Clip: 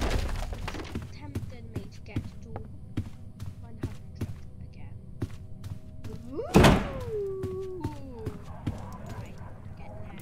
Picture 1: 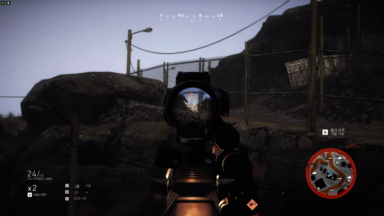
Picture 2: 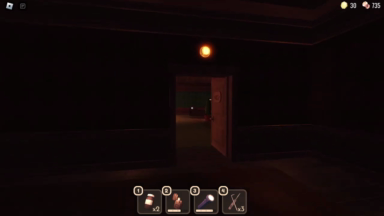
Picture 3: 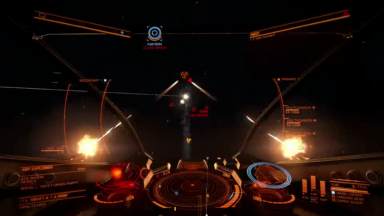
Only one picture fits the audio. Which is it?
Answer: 2